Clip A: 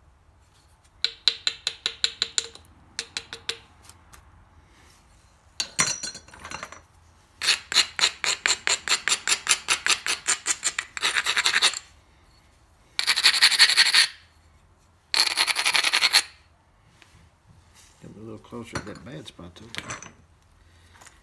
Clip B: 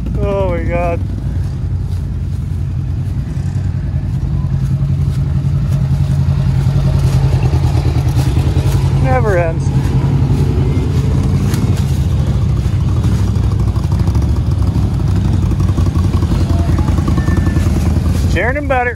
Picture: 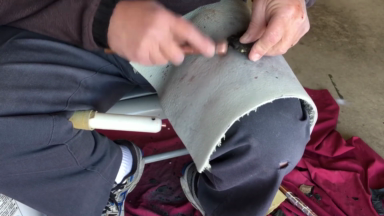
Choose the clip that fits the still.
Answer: A